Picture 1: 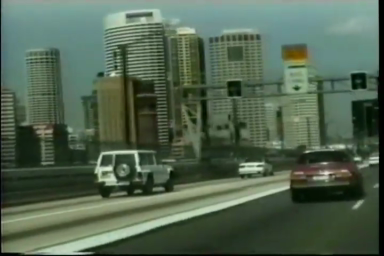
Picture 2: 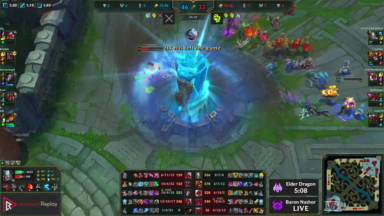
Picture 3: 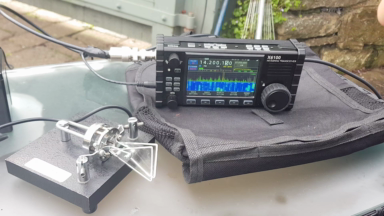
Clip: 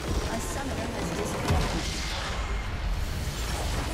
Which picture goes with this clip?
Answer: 2